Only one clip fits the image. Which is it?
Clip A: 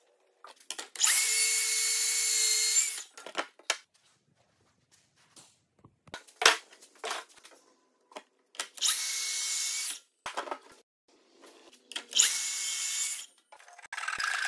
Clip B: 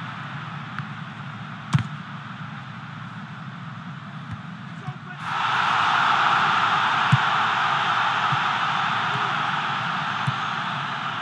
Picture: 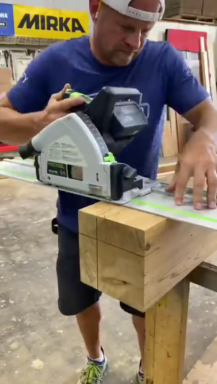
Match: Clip A